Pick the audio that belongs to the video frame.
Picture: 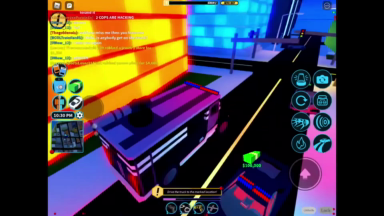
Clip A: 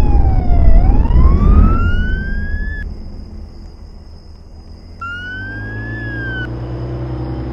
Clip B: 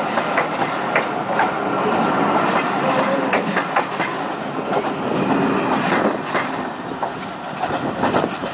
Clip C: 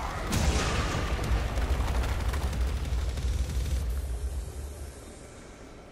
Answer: A